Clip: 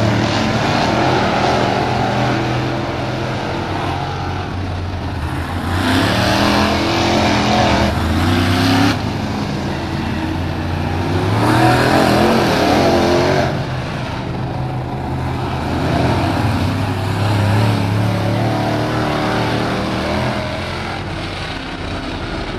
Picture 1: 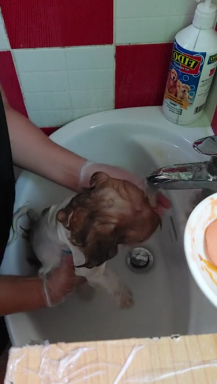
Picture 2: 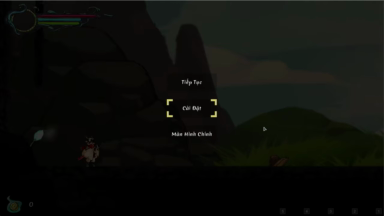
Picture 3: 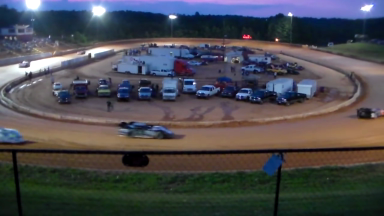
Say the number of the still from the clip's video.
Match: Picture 3